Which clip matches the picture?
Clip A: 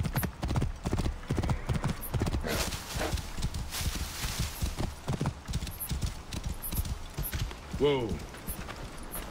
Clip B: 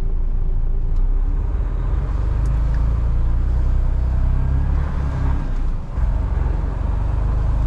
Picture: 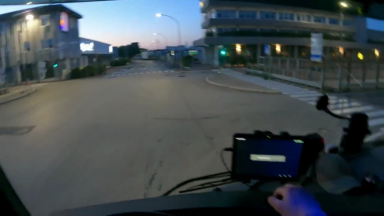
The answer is B